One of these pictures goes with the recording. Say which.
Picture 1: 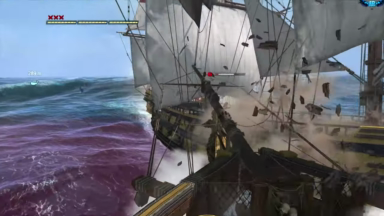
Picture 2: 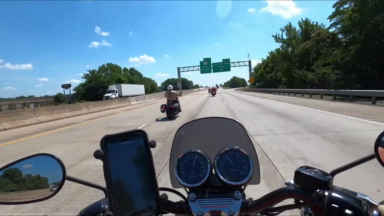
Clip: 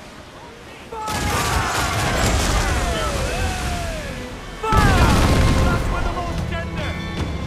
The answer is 1